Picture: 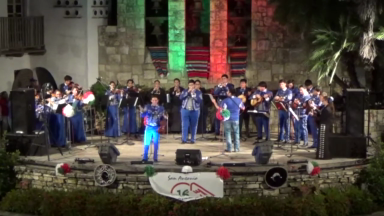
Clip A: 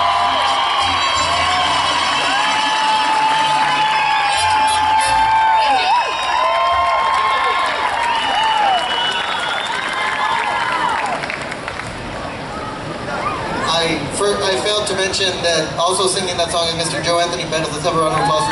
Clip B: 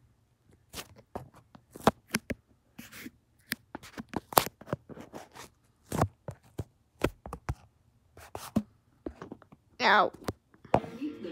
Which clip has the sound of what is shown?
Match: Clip A